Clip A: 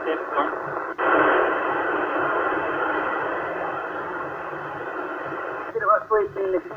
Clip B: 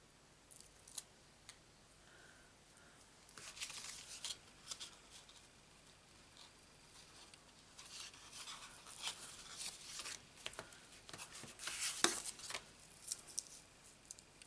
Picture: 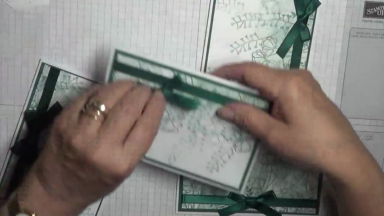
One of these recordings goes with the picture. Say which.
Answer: B